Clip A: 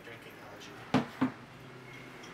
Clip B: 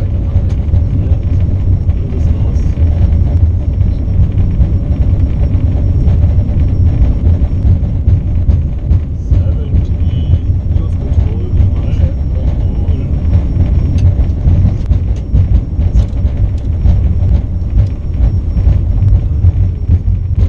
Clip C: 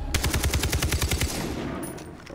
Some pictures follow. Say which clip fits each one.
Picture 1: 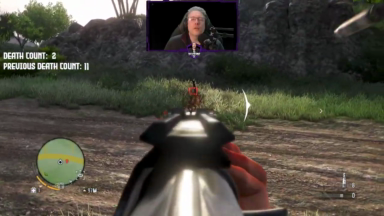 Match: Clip C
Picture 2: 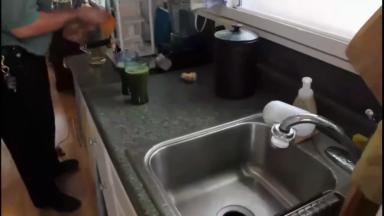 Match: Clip A